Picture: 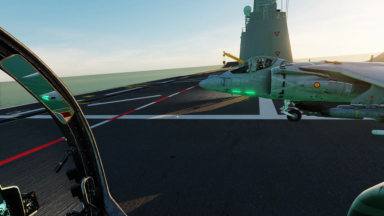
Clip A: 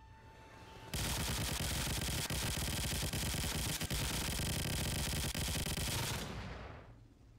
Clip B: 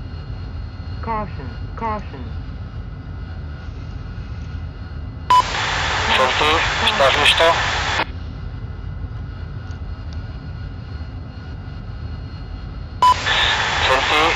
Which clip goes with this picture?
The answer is B